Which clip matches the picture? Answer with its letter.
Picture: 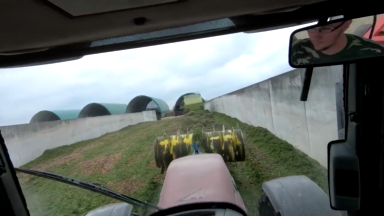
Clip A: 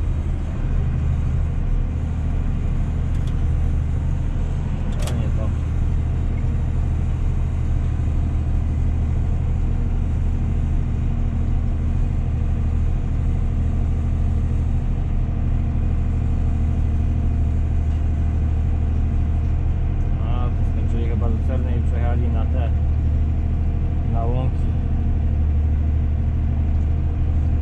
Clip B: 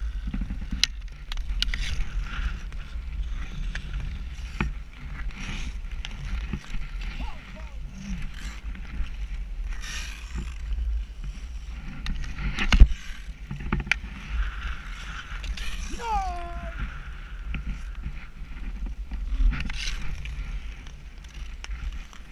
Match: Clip A